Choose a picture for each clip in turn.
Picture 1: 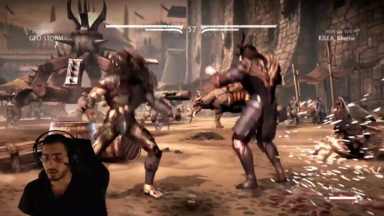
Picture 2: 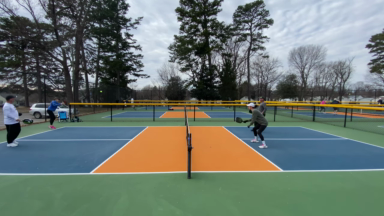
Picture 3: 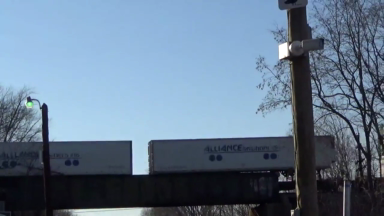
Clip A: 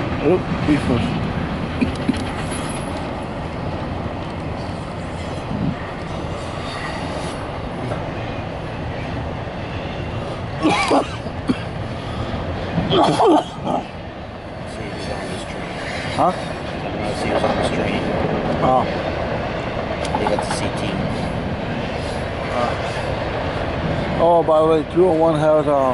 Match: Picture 3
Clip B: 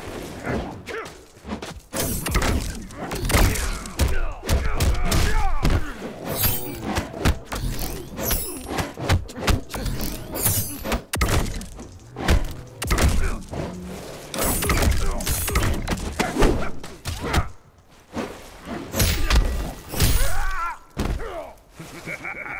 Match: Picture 1